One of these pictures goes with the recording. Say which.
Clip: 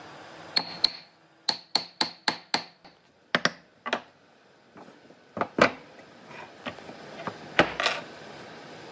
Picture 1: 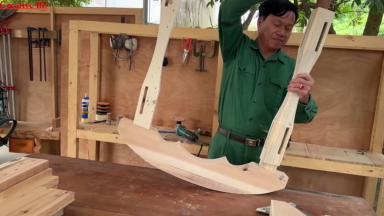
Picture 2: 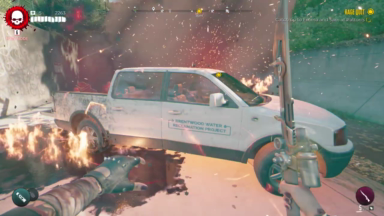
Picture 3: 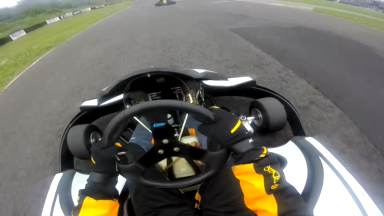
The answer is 1